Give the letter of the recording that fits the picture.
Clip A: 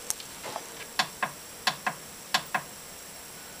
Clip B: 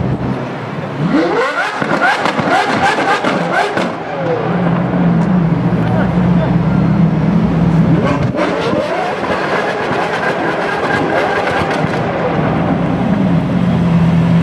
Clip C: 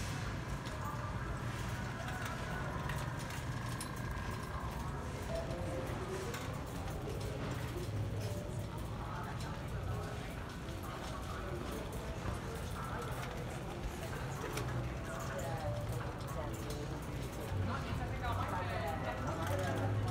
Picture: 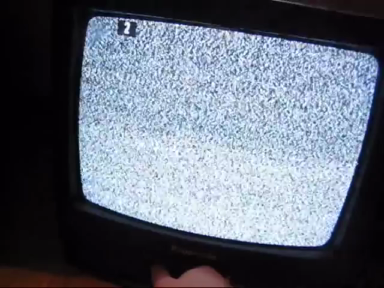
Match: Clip A